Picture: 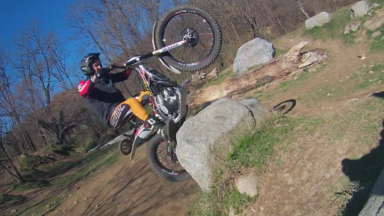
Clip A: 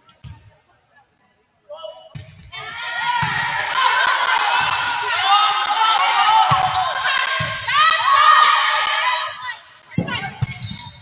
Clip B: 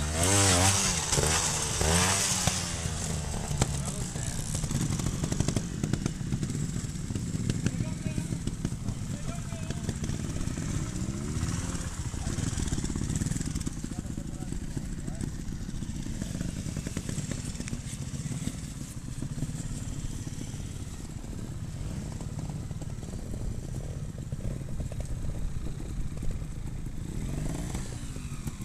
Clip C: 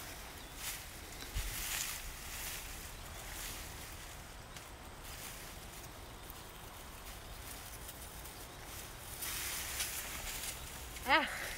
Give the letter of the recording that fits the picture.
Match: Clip B